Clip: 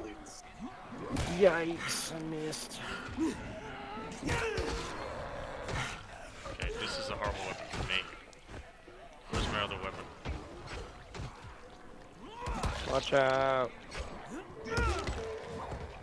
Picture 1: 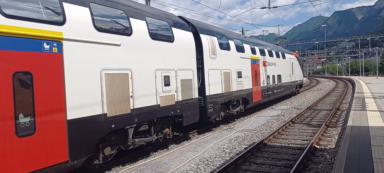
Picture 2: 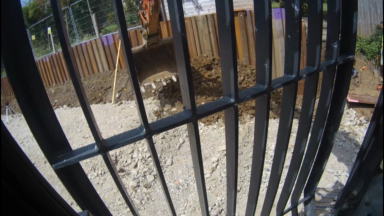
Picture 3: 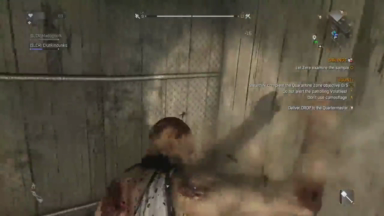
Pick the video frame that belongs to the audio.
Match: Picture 3